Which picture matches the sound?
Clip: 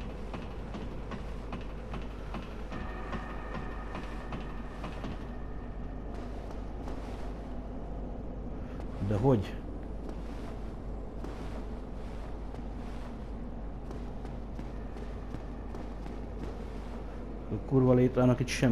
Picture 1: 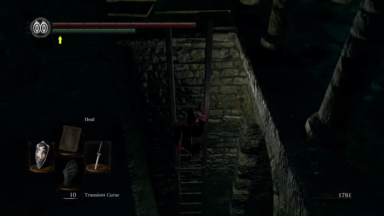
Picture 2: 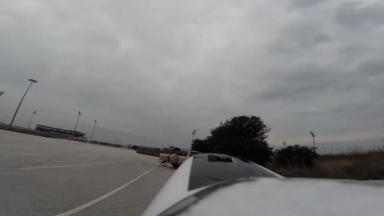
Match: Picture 1